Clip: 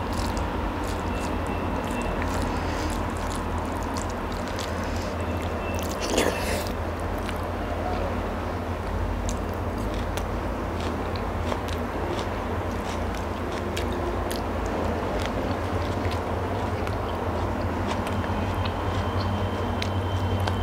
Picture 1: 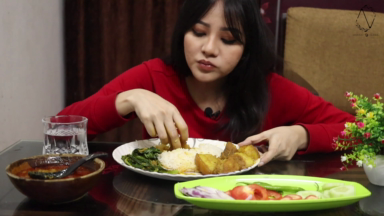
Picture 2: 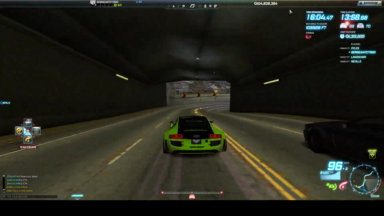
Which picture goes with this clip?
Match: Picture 1